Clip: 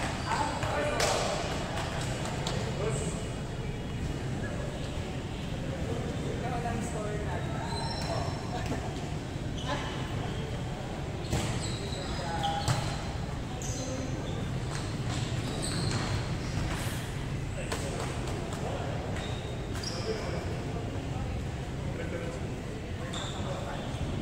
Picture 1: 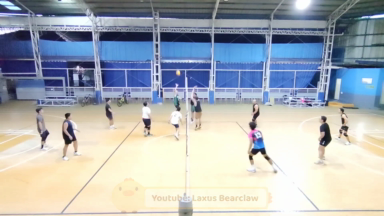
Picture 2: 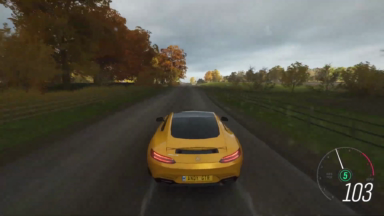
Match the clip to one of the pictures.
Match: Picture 1